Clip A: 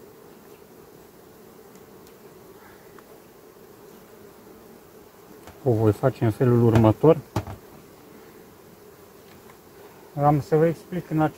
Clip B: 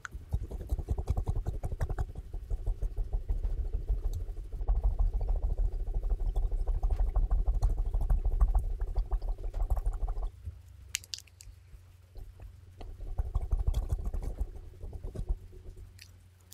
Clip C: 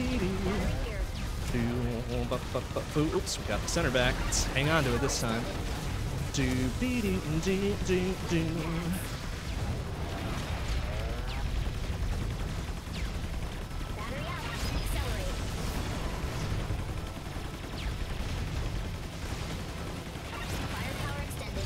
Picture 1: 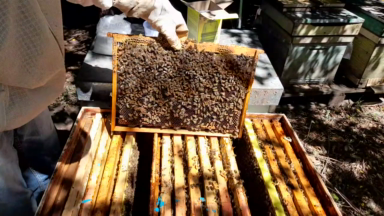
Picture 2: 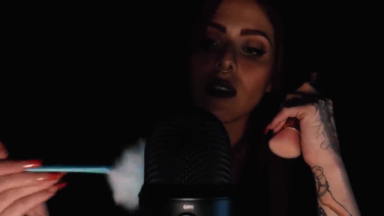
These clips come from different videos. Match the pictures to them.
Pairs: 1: A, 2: B